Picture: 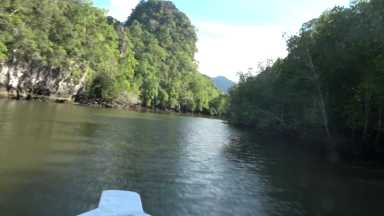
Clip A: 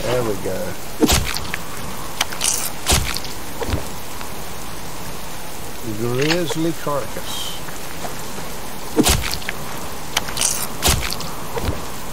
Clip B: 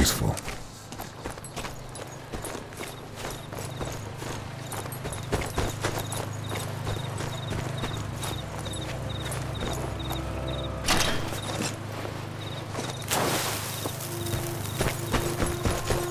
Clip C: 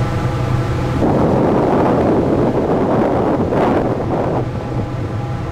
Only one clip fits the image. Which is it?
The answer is C